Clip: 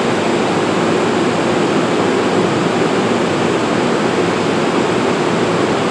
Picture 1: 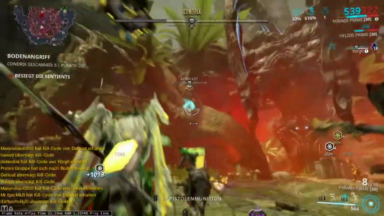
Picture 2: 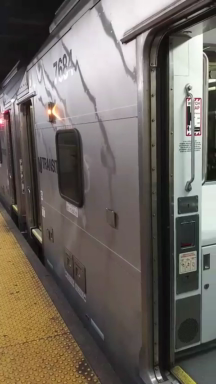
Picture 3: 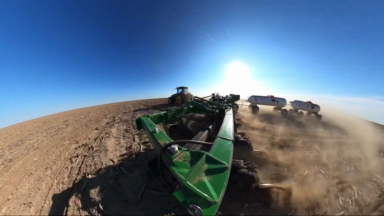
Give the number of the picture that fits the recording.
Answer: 2